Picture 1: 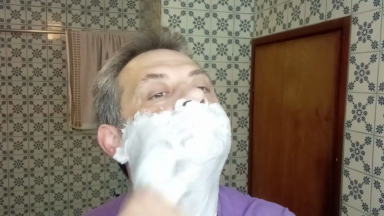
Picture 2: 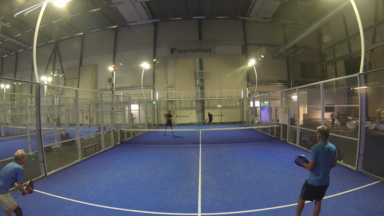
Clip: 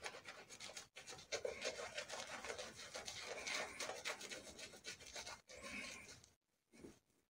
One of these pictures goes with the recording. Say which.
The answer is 1